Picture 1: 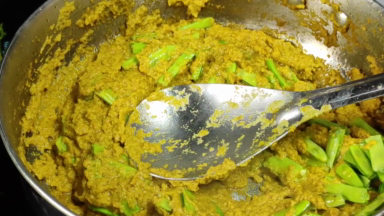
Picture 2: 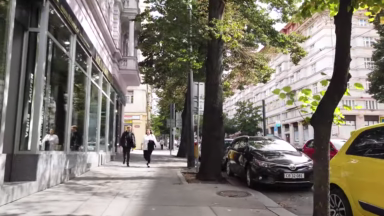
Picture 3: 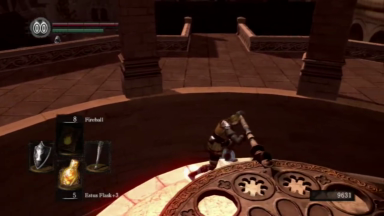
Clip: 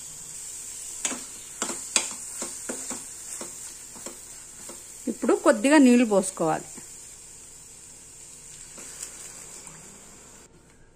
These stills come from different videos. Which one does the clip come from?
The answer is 1